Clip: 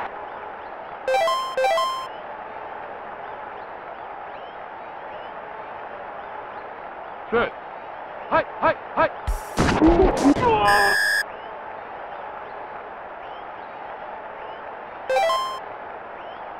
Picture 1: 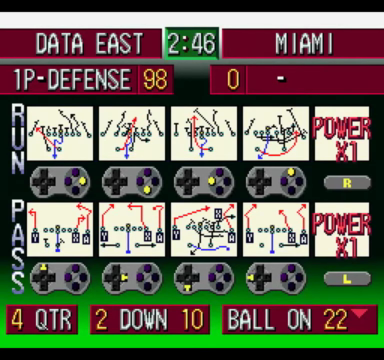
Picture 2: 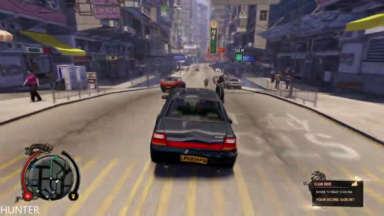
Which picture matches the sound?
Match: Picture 1